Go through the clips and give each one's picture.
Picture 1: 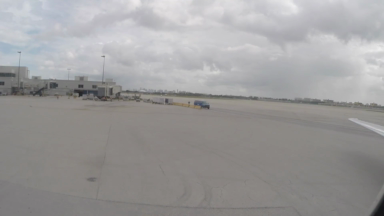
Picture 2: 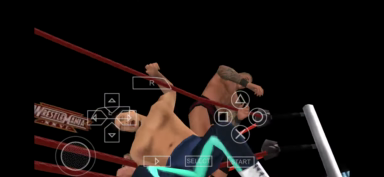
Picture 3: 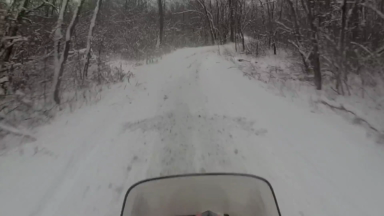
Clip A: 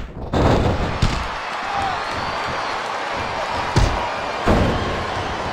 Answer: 2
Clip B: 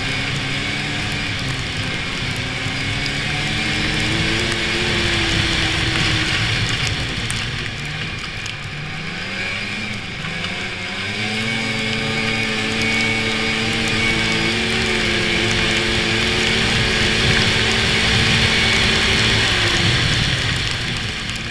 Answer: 3